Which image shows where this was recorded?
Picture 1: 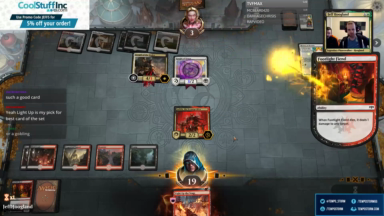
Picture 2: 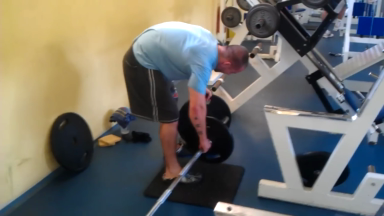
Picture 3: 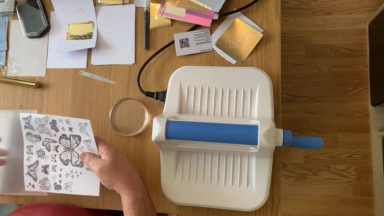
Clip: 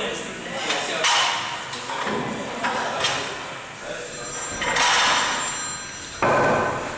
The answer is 2